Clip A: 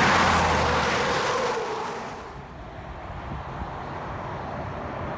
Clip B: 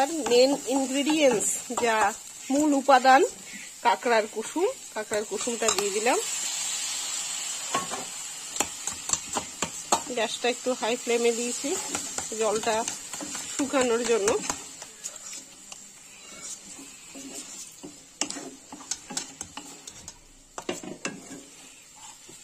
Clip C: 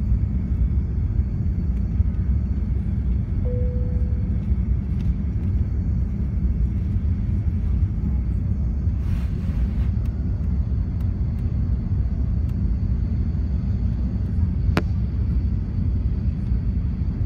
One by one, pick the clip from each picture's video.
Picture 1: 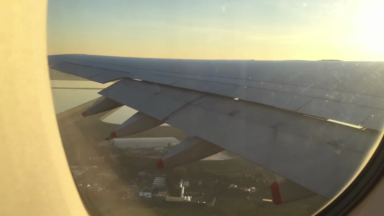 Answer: C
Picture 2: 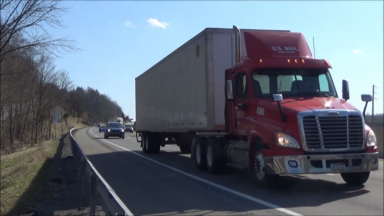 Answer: A